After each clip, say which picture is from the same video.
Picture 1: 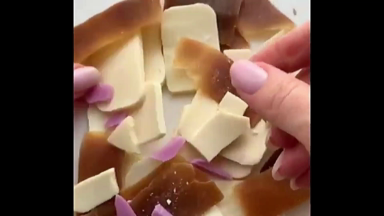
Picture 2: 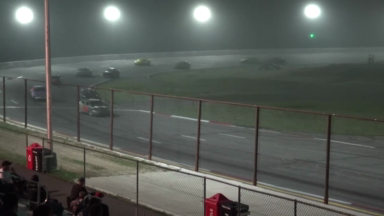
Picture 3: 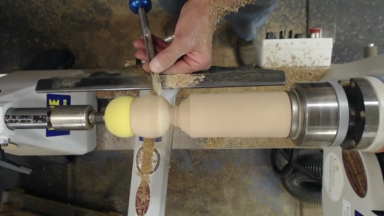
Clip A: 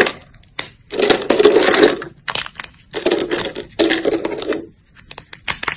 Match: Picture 1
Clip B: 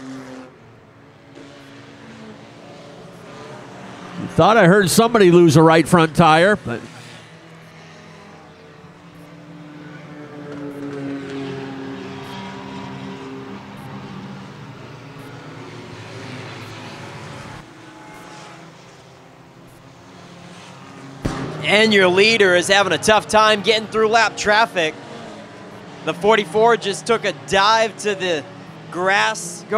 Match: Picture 2